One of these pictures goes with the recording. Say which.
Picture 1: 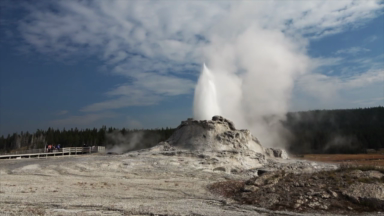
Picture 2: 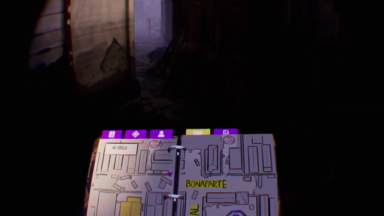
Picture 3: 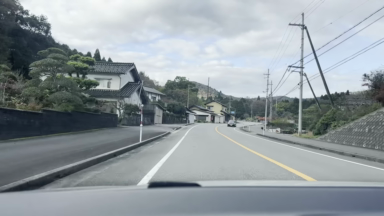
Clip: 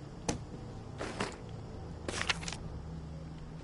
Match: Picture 2